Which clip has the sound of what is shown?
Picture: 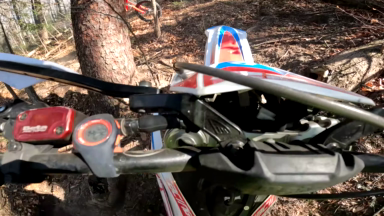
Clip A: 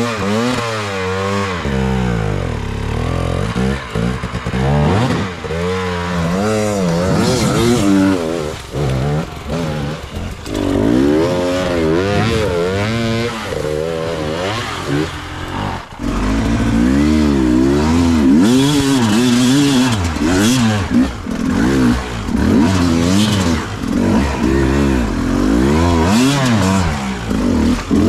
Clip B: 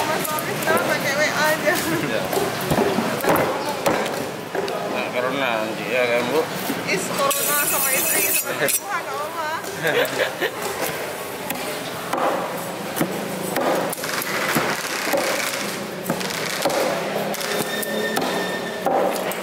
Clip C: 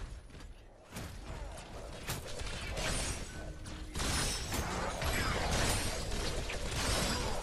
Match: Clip A